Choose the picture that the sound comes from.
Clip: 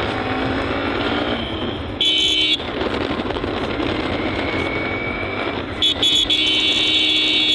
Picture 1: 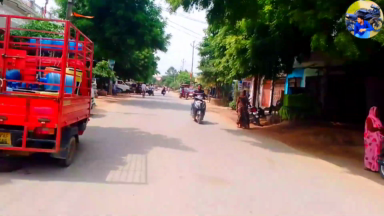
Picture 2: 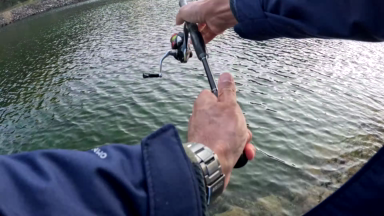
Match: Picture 1